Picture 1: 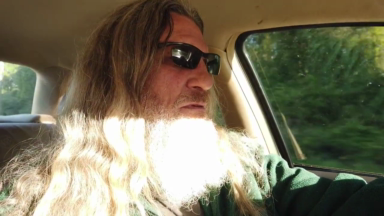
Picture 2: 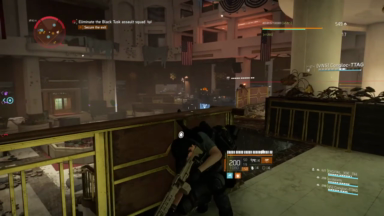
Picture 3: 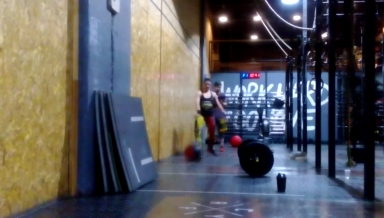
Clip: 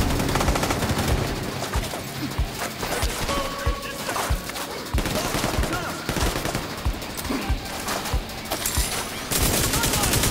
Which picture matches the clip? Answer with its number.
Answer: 2